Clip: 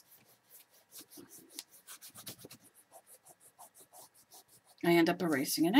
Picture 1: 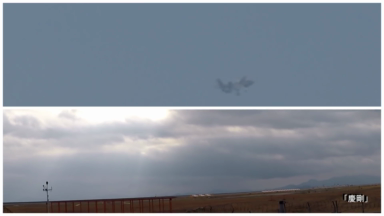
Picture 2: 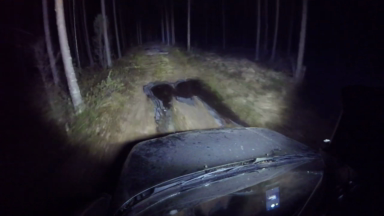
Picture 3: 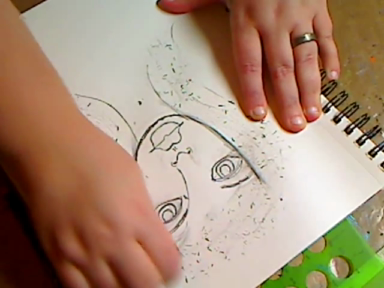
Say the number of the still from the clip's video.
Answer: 3